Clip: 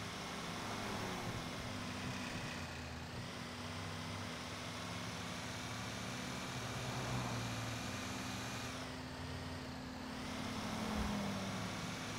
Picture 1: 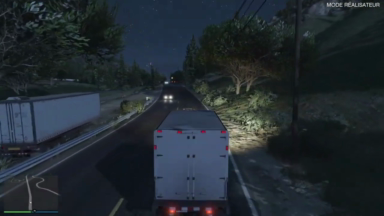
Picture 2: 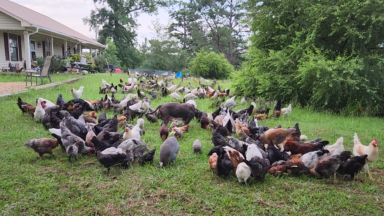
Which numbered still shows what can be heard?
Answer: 1